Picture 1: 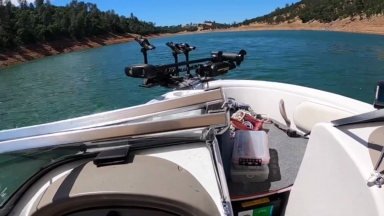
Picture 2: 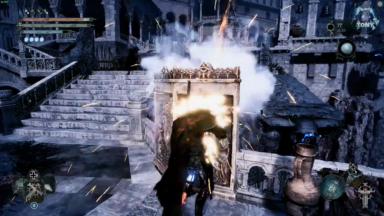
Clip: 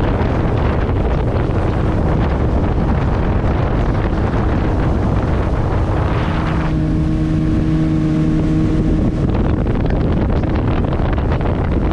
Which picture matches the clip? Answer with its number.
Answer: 1